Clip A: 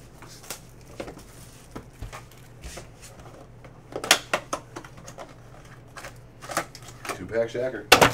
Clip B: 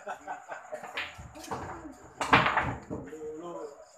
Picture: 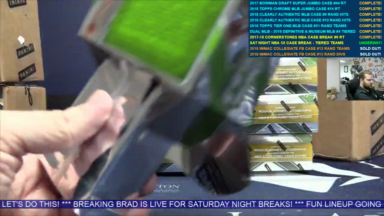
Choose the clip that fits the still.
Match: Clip A